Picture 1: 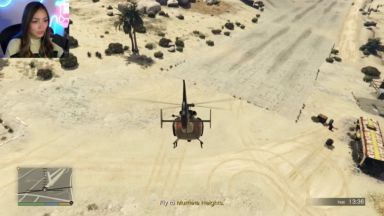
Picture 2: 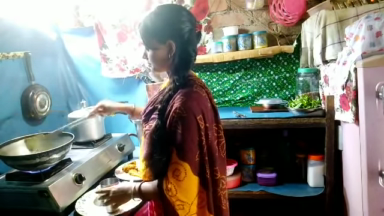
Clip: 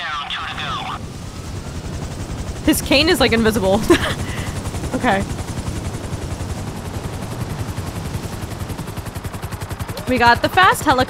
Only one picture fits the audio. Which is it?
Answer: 1